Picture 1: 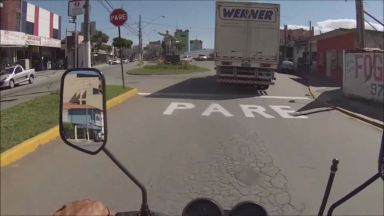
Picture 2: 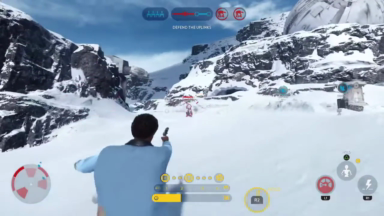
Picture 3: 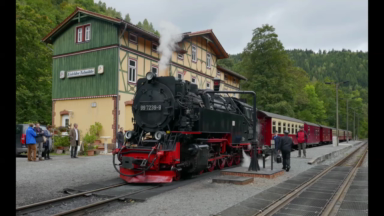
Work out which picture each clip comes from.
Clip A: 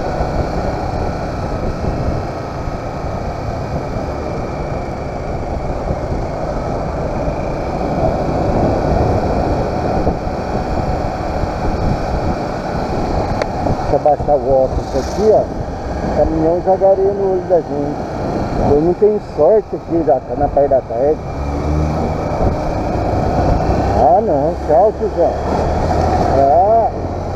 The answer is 1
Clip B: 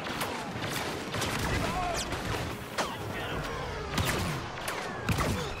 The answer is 2